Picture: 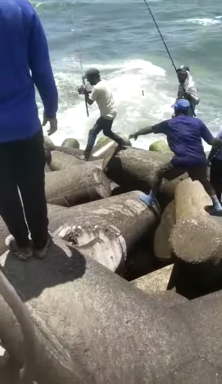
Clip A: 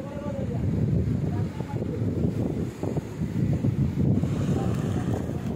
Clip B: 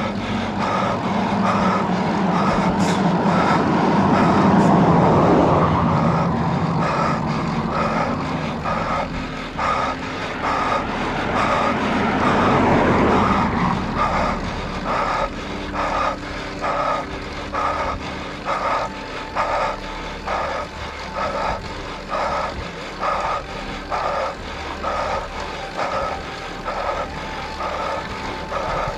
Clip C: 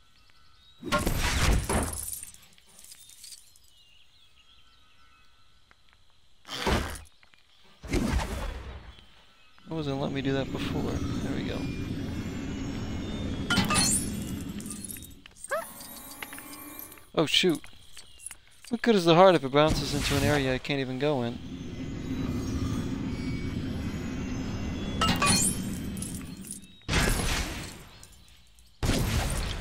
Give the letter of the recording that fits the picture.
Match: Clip A